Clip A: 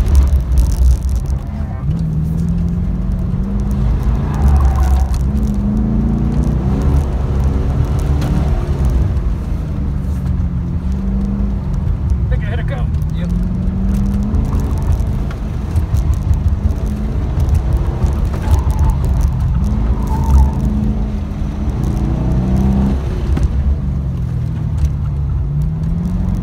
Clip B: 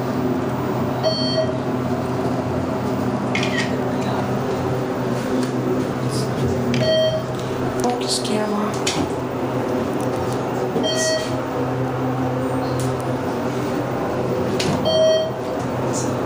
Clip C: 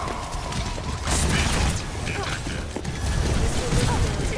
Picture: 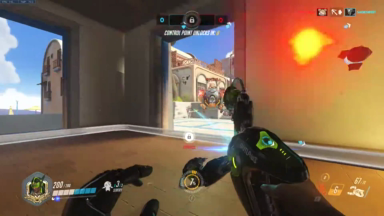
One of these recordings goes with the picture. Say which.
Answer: C